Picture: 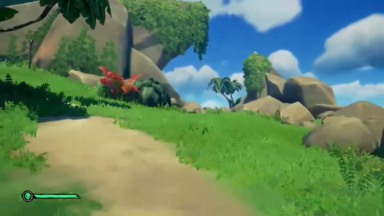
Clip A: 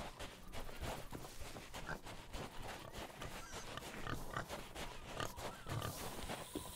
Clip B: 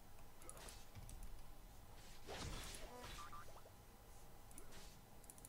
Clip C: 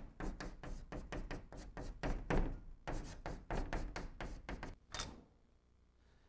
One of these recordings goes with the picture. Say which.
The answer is A